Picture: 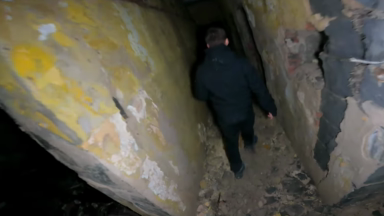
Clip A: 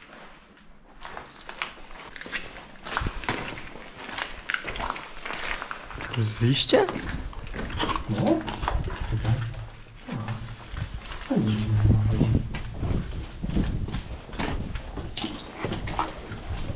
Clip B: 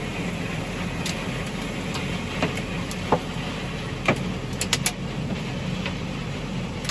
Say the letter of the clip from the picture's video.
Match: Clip A